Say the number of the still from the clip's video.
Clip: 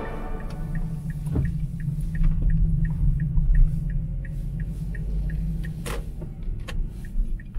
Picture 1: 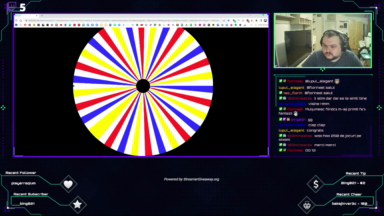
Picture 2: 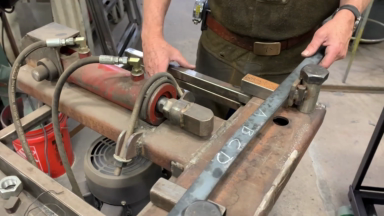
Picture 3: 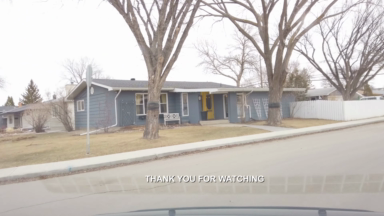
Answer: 3